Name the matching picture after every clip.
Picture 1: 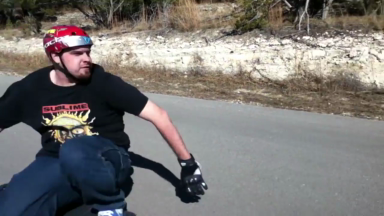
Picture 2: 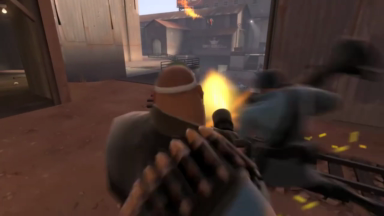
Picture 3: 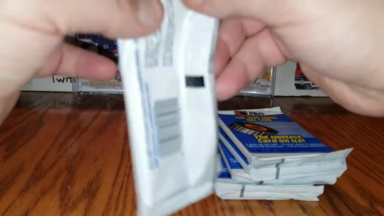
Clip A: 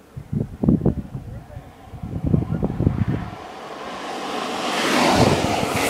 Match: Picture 1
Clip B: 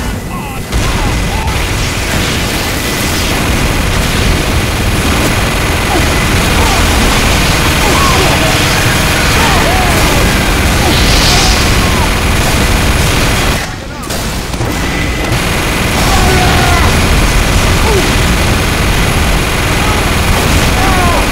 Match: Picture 2